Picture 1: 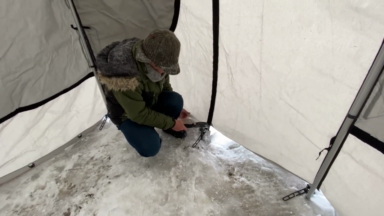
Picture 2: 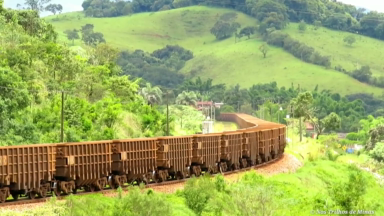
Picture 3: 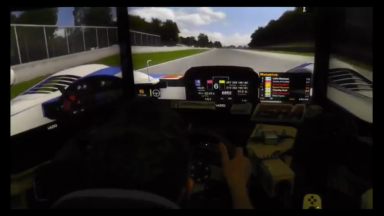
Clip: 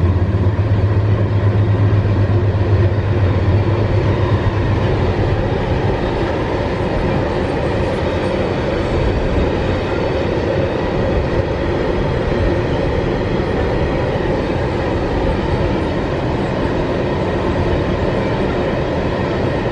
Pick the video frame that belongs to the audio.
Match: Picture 2